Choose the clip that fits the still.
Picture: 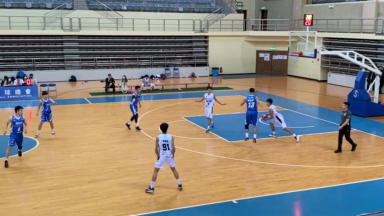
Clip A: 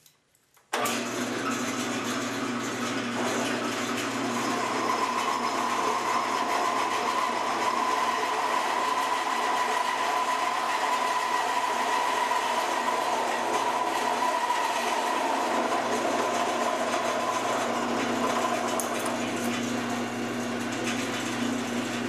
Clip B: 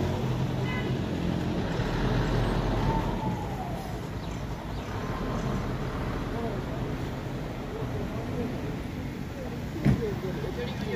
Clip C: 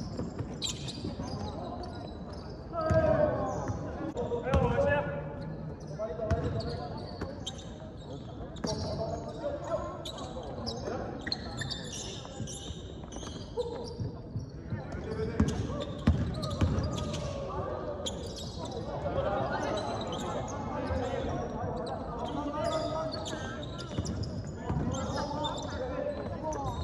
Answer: C